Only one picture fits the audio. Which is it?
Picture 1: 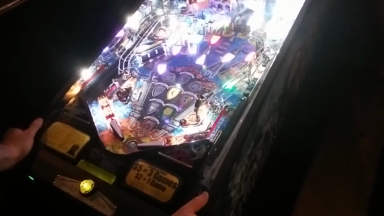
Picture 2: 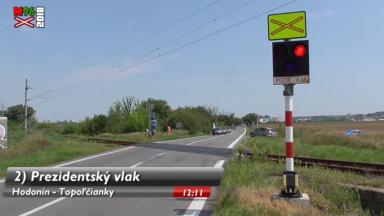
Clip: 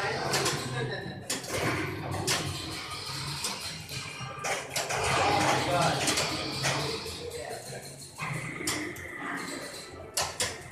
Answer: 1